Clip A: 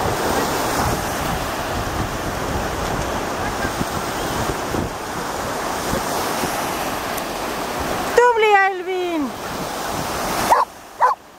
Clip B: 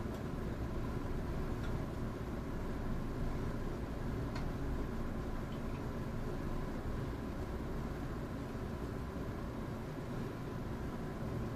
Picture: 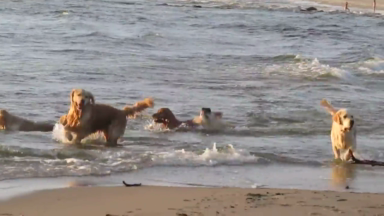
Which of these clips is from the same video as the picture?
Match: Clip A